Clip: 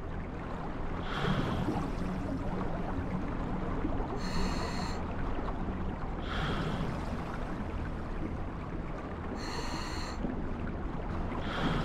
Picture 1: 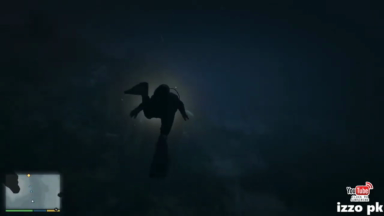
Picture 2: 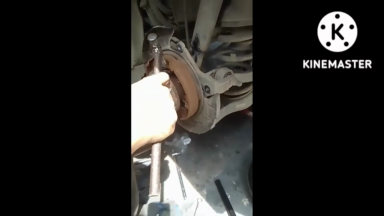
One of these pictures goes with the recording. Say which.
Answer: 1